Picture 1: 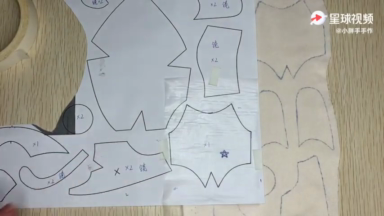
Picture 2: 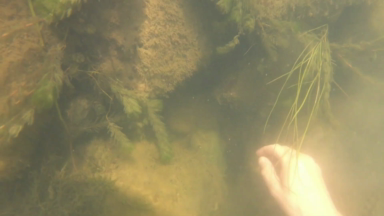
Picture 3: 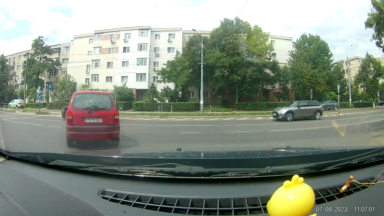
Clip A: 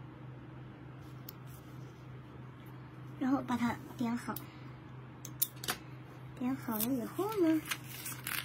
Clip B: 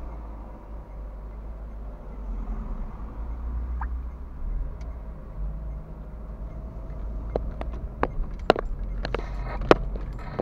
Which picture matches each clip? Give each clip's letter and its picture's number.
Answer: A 1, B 3